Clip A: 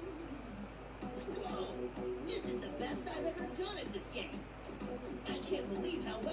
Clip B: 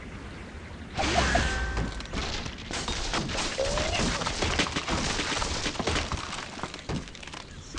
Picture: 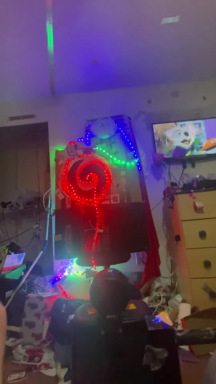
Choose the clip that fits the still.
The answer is A